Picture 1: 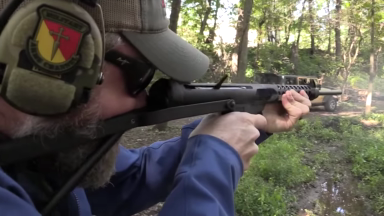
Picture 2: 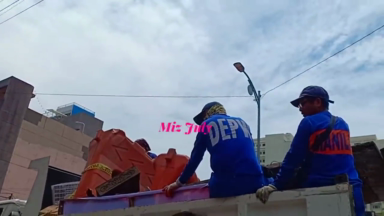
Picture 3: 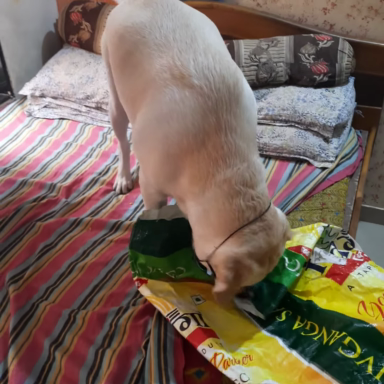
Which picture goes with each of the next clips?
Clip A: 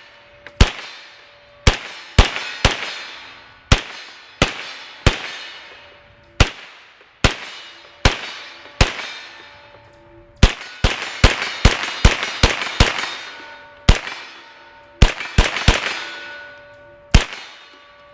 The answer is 1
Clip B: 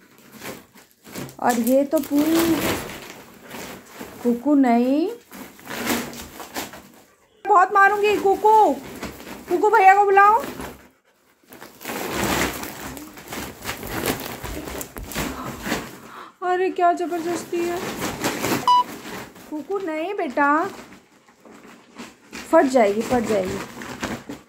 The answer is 3